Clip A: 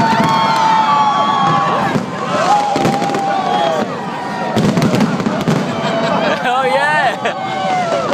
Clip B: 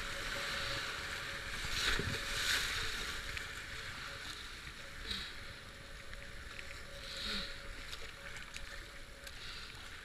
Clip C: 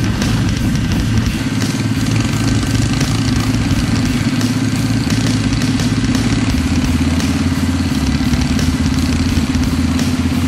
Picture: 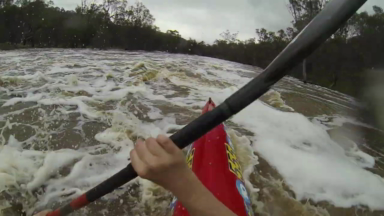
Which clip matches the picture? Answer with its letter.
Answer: B